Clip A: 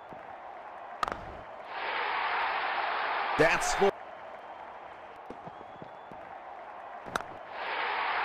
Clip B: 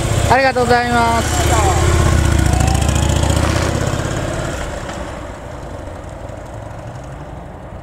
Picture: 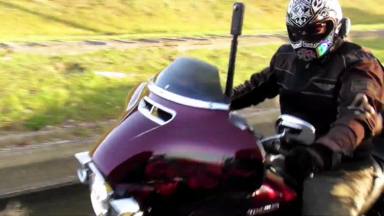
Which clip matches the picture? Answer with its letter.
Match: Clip B